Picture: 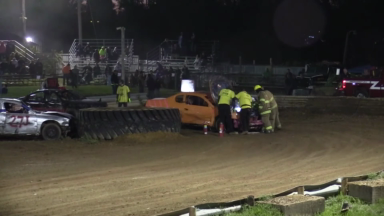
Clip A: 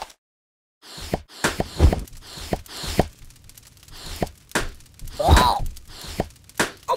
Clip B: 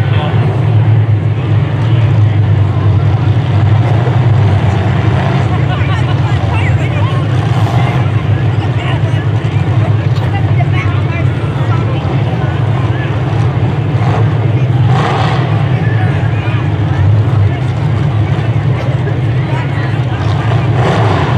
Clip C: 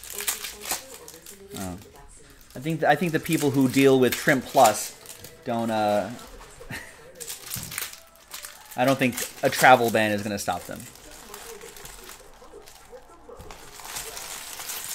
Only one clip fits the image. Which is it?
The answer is B